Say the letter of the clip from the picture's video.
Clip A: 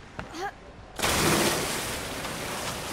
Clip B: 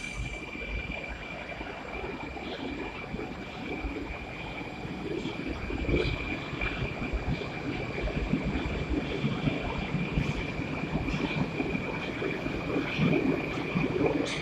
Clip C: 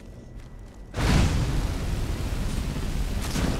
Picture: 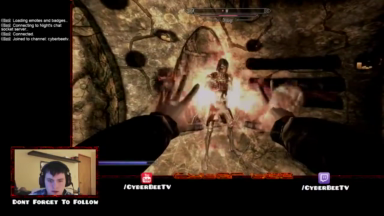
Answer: C